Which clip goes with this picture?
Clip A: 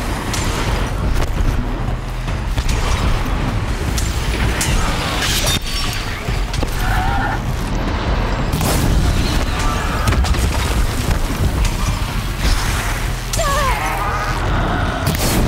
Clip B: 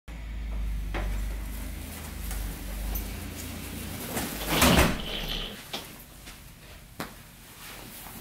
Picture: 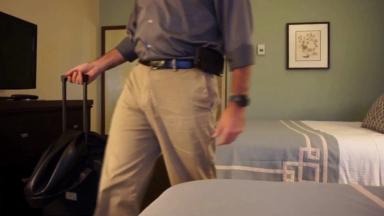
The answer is B